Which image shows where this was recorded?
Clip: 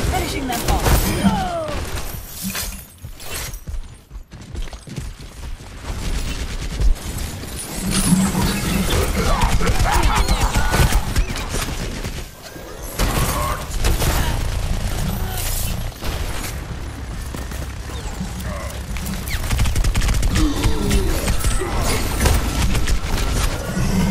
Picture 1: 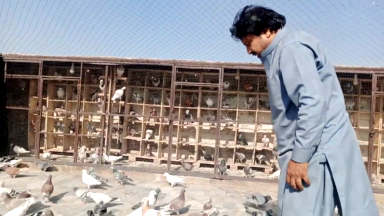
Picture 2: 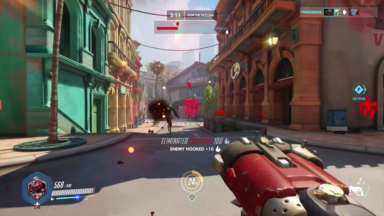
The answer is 2